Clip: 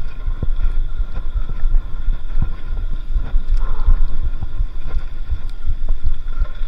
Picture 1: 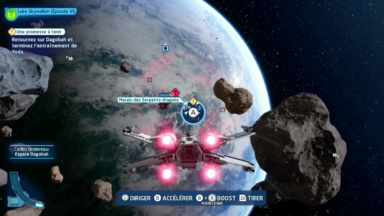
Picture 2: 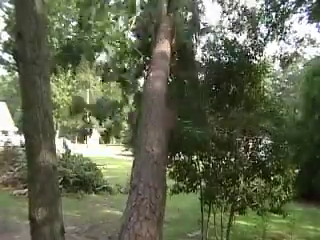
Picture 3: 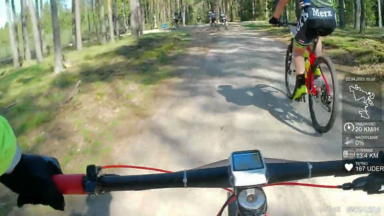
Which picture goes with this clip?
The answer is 3